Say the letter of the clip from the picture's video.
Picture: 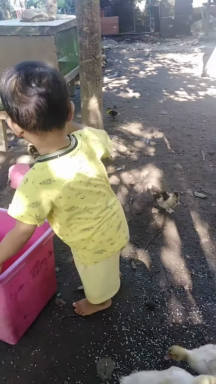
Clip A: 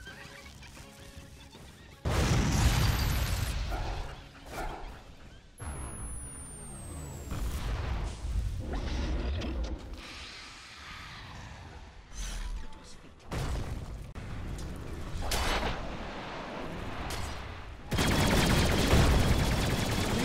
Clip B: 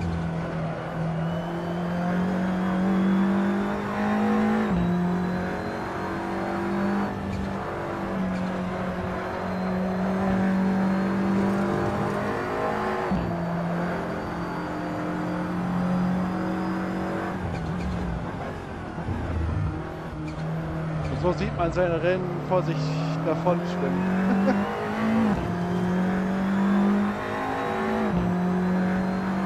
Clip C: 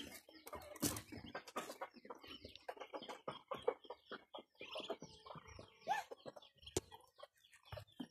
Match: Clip C